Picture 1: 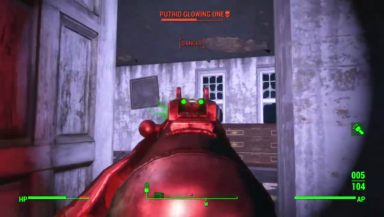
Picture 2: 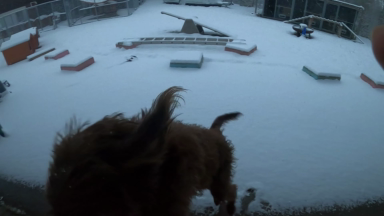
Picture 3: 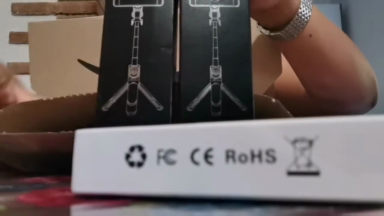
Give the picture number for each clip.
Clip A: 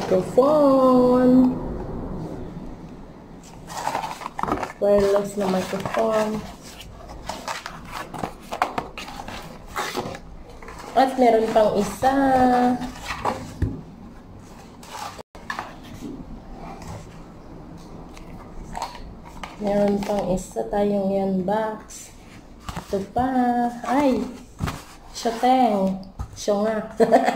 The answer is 3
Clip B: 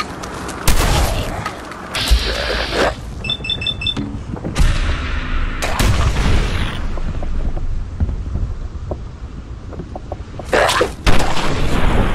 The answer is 1